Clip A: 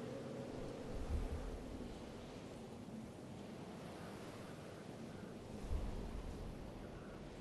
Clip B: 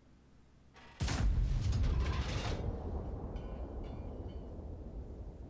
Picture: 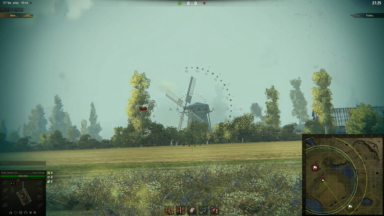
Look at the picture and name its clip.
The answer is B